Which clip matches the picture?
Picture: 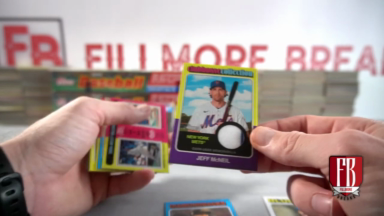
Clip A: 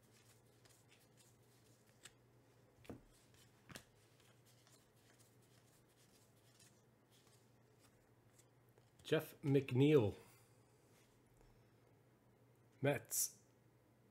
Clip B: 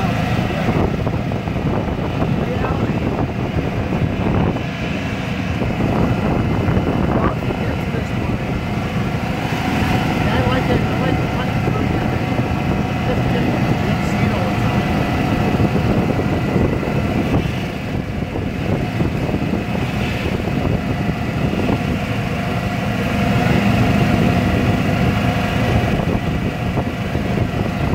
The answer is A